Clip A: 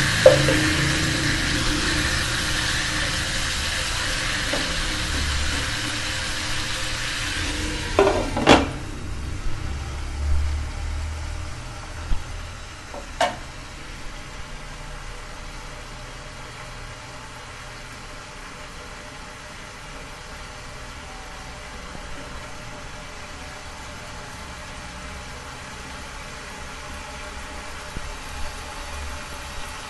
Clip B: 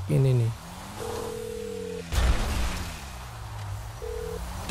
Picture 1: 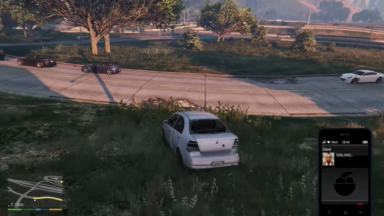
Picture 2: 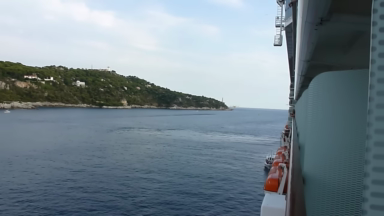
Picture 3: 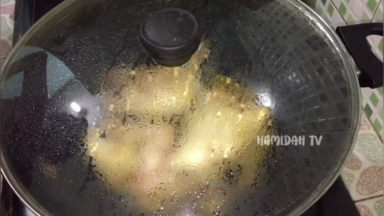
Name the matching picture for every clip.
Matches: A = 3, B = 1